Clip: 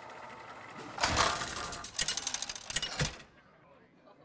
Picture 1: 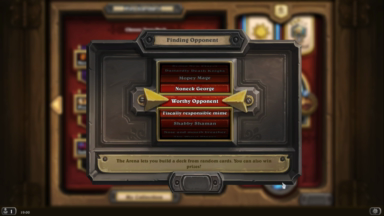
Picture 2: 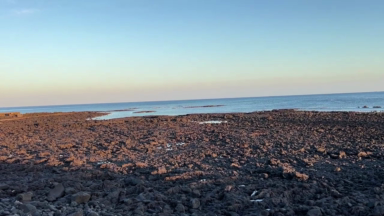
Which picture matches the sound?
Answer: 1